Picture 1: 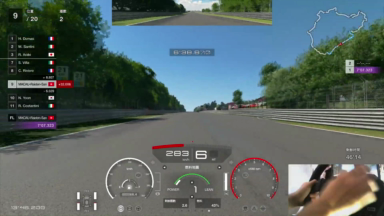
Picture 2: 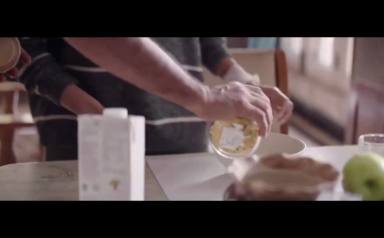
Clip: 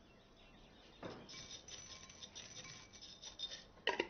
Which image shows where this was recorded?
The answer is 2